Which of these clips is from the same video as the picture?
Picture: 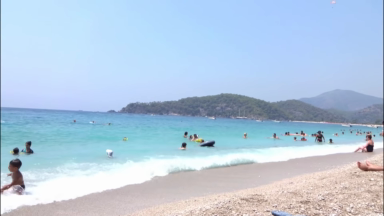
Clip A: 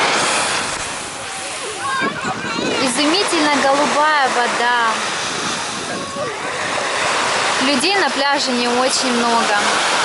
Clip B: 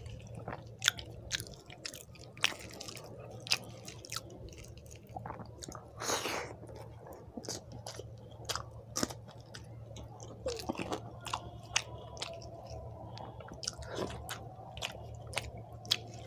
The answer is A